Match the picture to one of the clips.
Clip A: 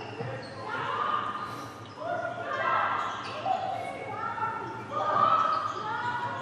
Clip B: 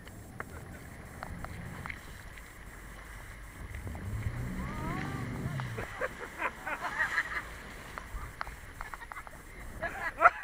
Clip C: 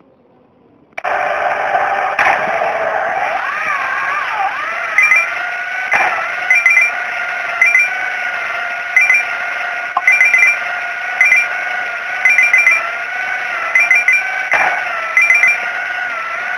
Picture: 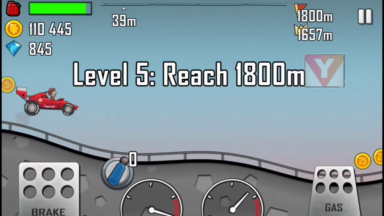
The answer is C